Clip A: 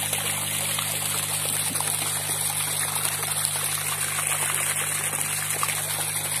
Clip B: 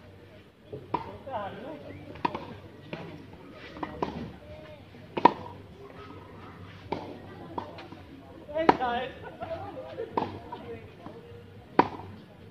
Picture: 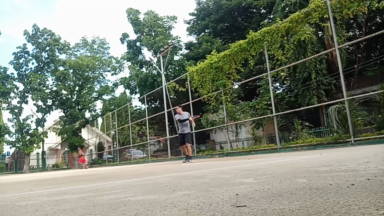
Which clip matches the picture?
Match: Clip B